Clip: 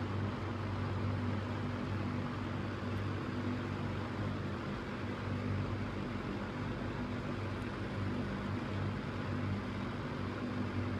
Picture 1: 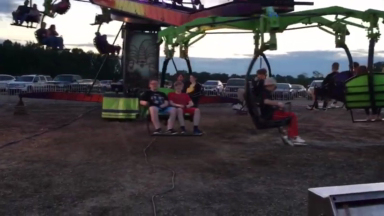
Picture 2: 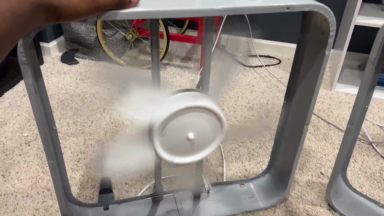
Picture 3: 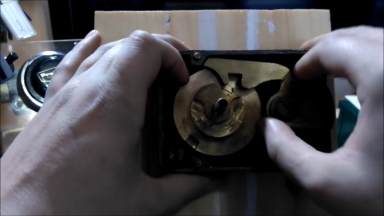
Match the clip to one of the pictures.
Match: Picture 2